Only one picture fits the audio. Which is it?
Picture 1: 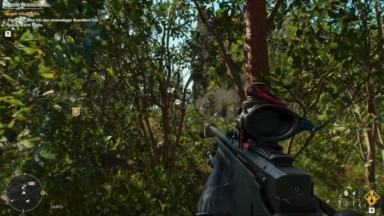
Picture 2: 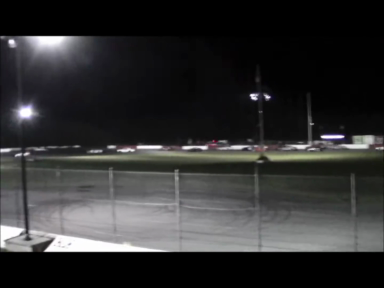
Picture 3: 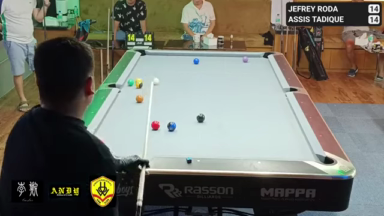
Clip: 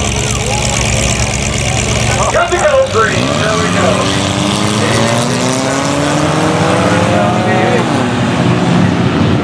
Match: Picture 2